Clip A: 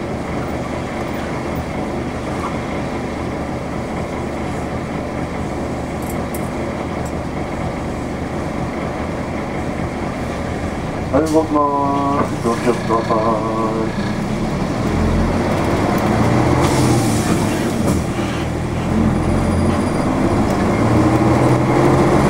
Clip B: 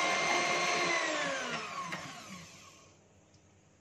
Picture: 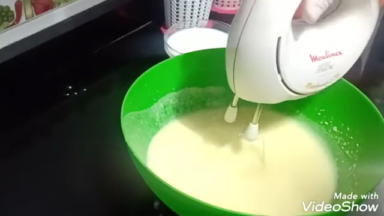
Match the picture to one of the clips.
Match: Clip B